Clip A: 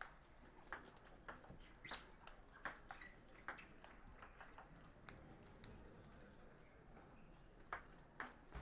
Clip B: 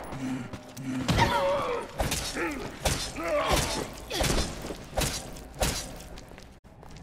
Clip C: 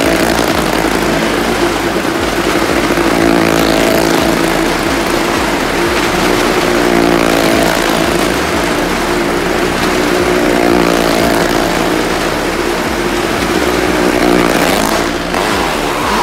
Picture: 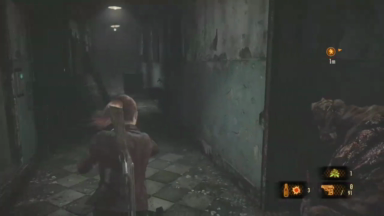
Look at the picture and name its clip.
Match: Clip B